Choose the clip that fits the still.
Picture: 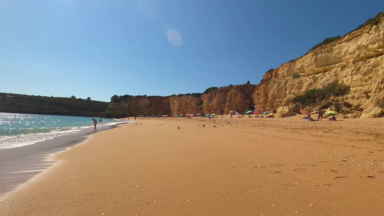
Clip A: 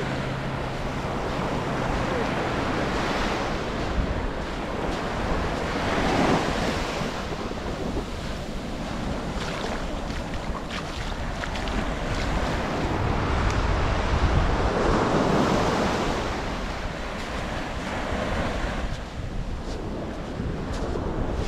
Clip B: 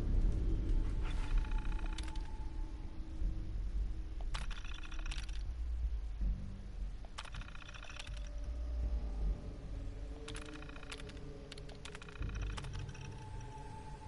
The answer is A